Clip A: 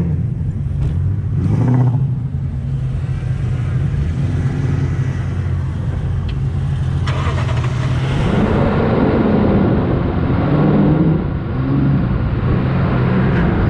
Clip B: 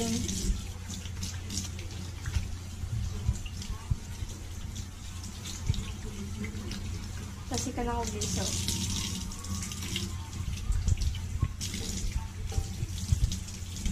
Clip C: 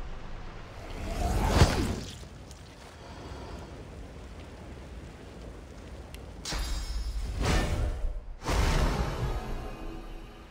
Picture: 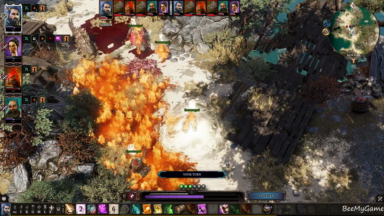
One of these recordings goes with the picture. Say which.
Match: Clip C